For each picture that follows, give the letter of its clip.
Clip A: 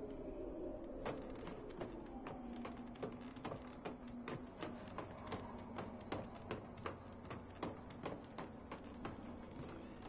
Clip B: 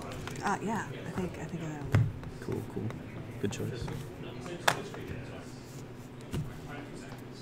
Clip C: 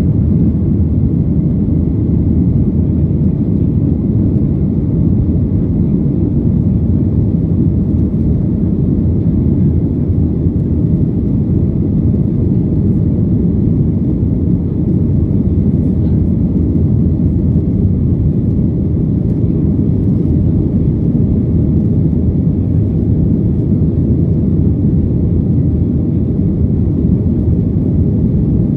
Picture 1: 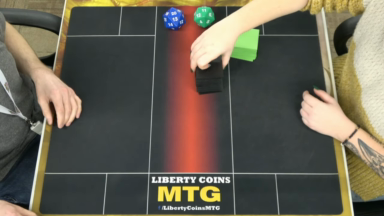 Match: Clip B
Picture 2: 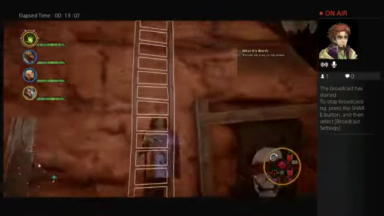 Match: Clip A